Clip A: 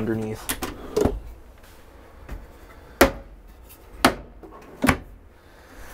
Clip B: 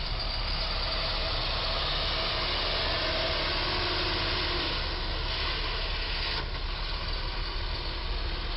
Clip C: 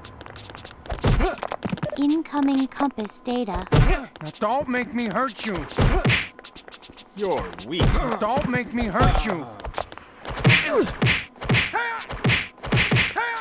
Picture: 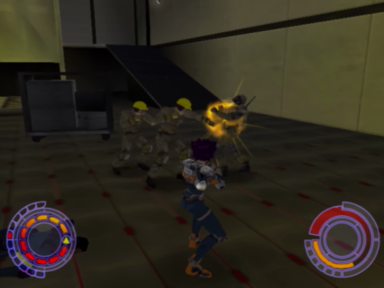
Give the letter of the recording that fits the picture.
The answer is C